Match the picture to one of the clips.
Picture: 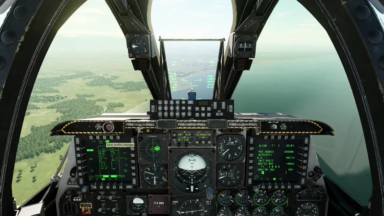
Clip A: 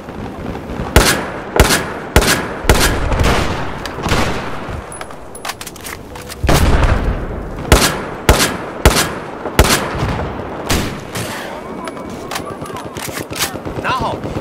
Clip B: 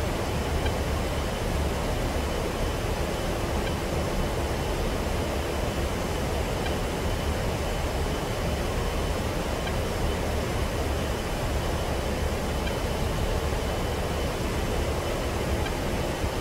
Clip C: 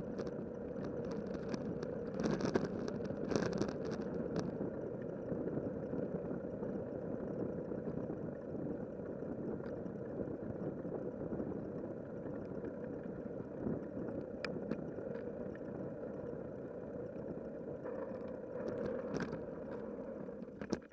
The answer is B